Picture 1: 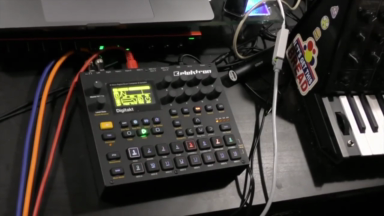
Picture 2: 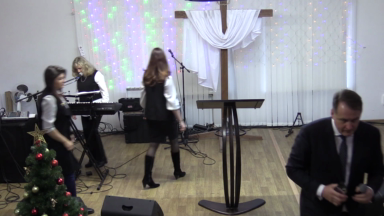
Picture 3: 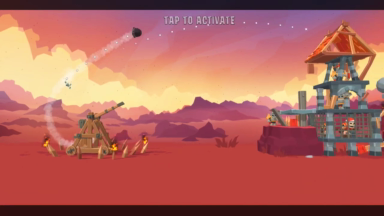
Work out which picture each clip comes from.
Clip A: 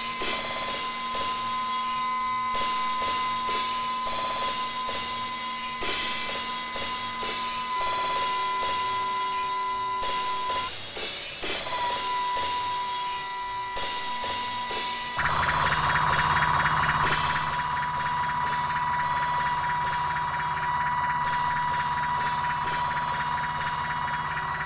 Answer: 1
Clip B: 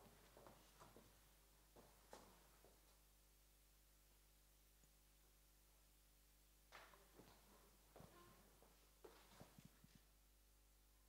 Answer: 2